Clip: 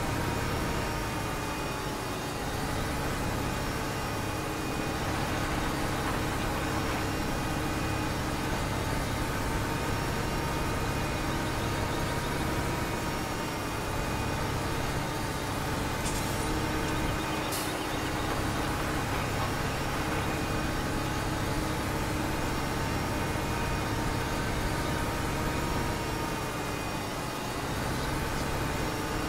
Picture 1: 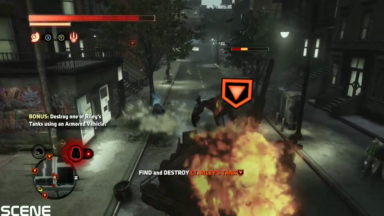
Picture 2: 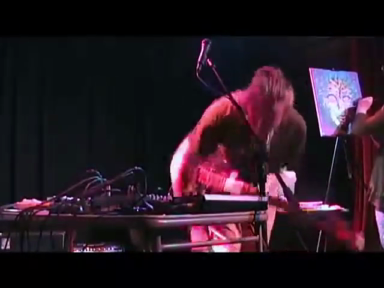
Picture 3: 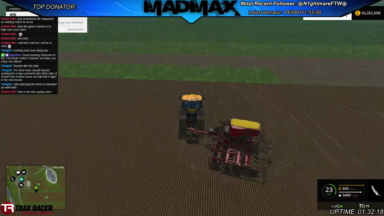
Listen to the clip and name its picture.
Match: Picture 3